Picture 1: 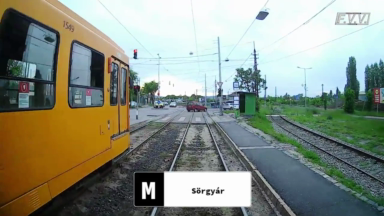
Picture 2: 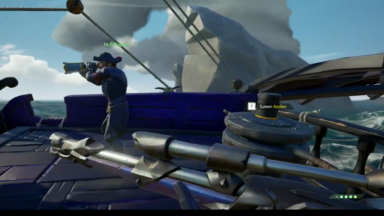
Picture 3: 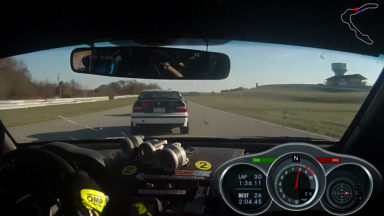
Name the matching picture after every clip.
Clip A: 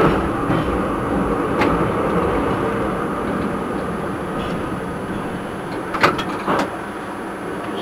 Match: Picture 1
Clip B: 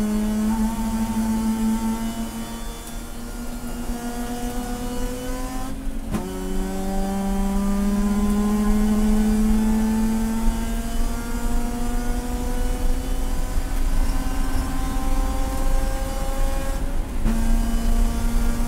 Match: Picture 3